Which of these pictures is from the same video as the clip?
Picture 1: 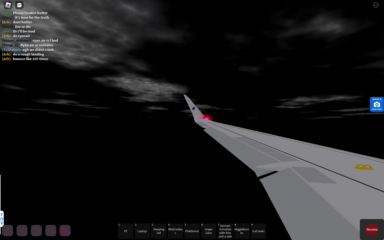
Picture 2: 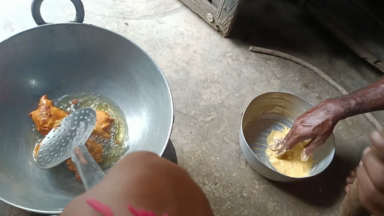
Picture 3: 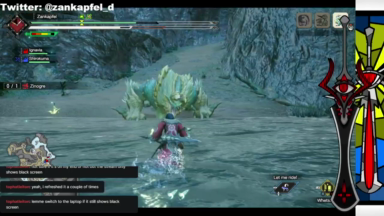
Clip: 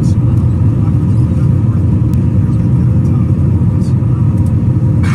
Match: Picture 1